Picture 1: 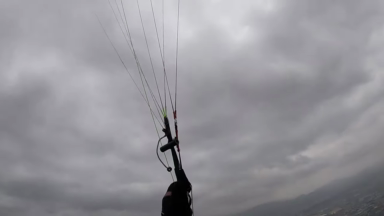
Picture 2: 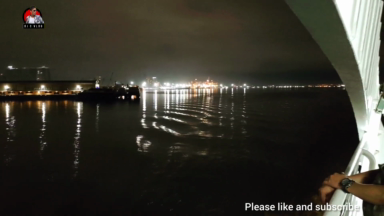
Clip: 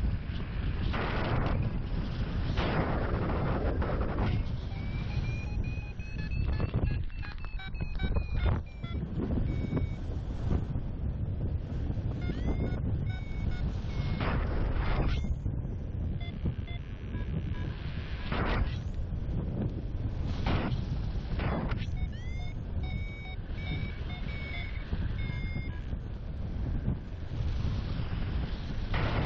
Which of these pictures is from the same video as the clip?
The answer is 1